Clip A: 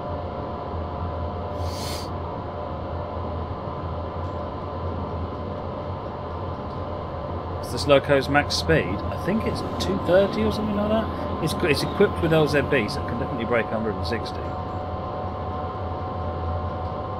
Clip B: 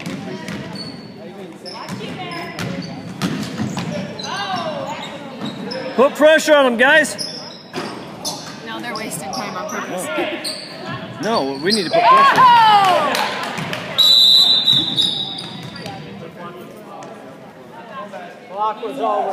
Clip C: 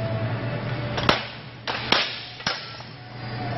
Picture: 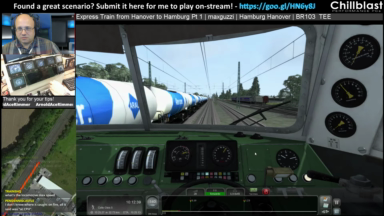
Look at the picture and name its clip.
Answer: A